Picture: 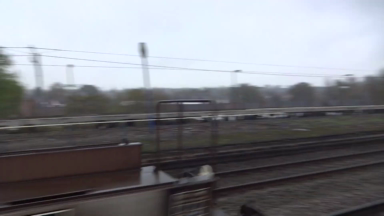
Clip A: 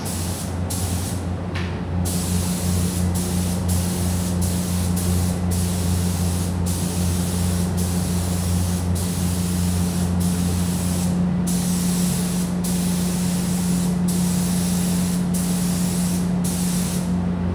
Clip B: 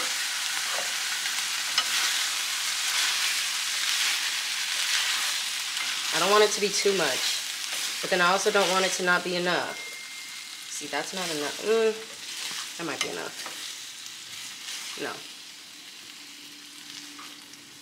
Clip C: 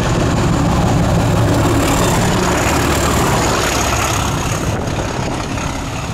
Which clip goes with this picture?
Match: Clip C